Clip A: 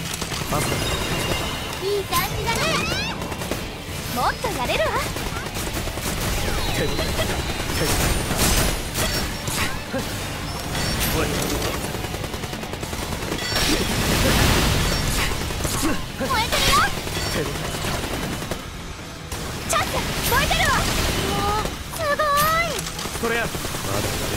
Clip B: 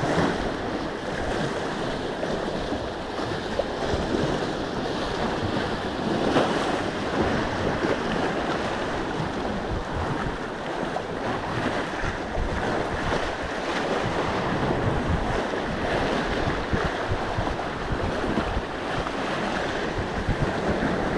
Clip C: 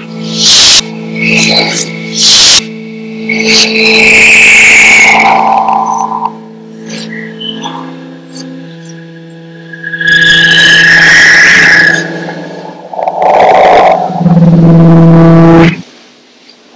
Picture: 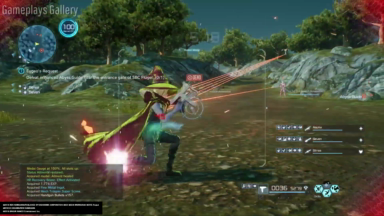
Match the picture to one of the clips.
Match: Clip A